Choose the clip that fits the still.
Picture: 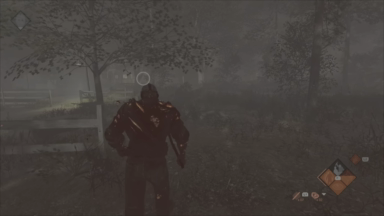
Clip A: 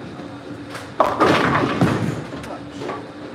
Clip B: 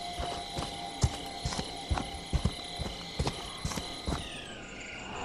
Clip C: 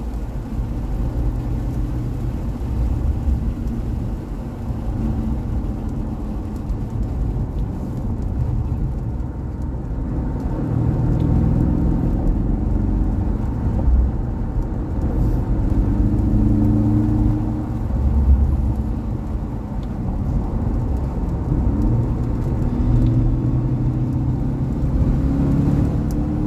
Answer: B